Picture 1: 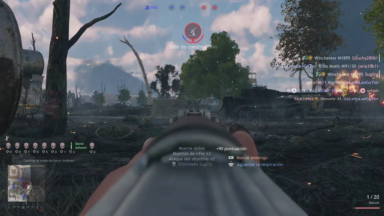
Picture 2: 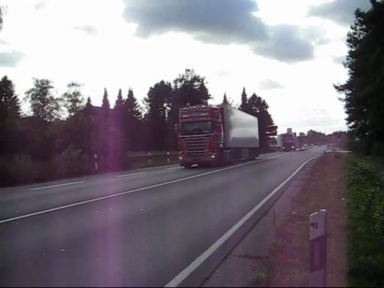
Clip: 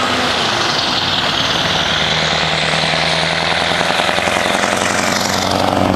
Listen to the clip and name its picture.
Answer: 2